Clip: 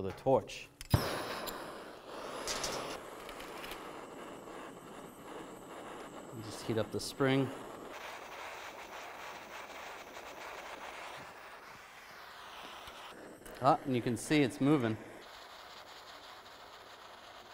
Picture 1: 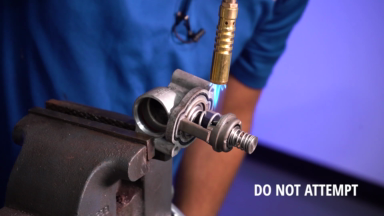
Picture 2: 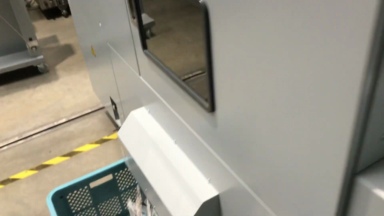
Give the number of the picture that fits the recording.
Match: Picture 1